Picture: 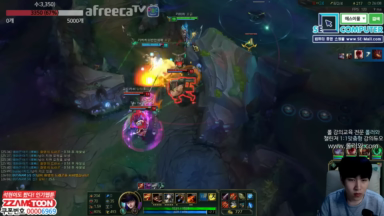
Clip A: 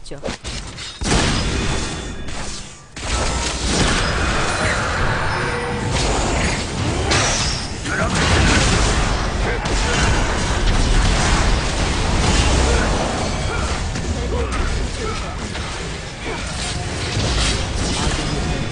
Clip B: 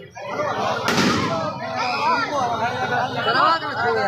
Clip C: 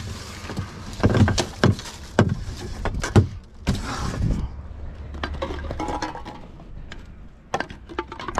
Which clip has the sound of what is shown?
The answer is A